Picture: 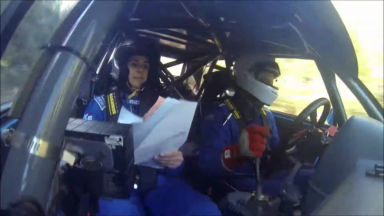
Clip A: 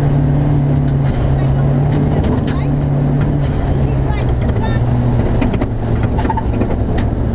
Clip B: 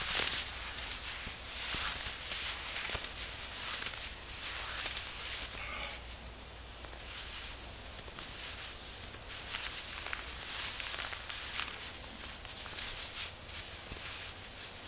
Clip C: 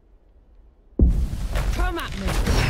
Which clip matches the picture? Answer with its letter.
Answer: A